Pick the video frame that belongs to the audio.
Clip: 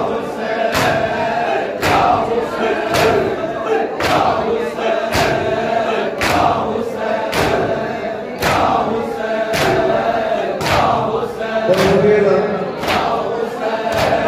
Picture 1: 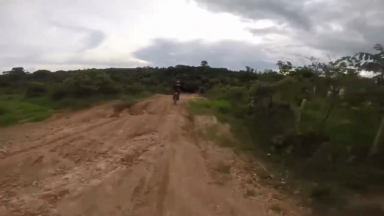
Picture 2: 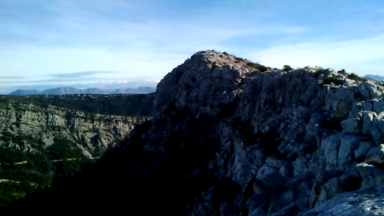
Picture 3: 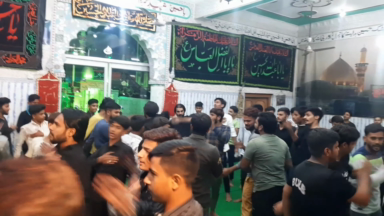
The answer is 3